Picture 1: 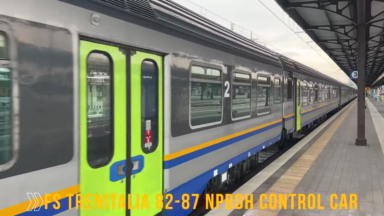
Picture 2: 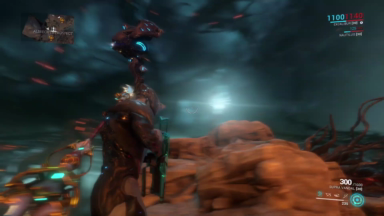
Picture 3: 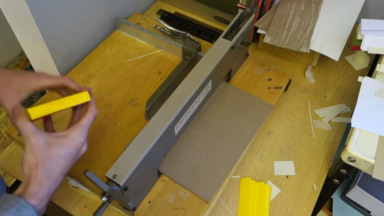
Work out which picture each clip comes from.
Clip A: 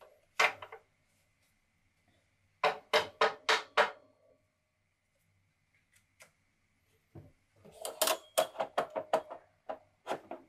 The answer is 3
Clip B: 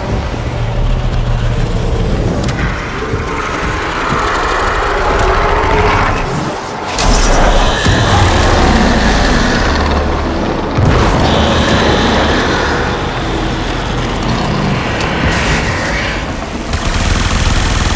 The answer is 2